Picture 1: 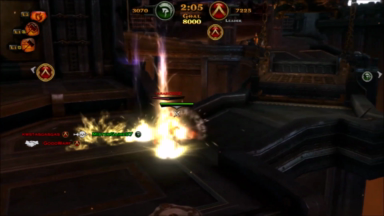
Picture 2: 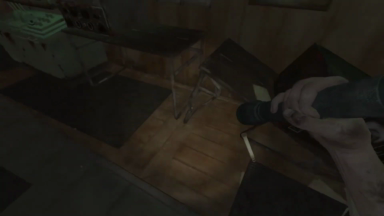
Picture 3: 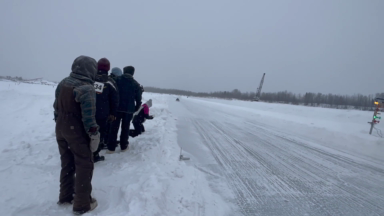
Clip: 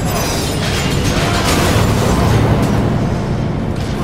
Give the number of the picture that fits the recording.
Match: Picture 1